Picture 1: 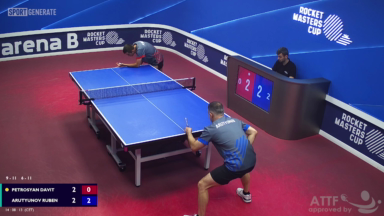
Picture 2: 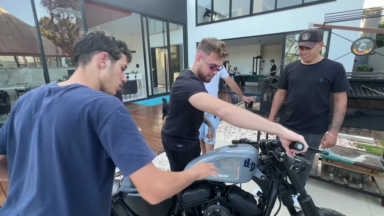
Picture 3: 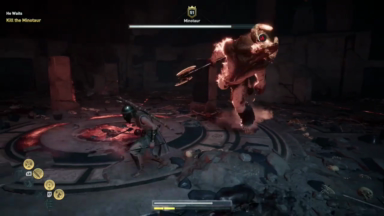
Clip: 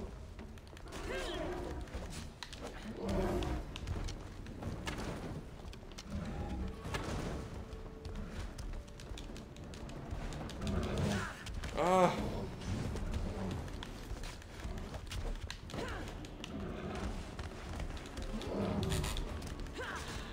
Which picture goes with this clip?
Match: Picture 3